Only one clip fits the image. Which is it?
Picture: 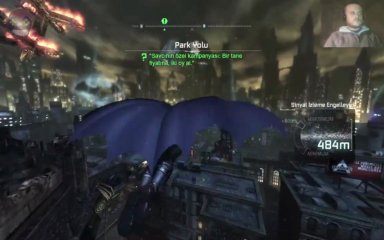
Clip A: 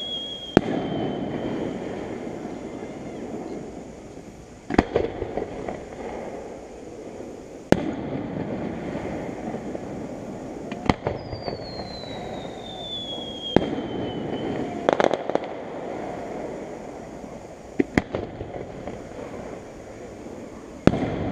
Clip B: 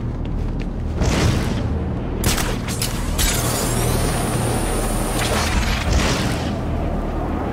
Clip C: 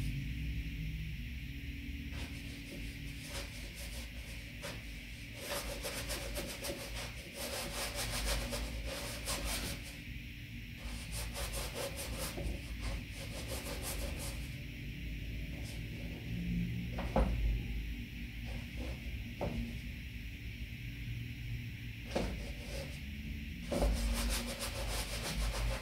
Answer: B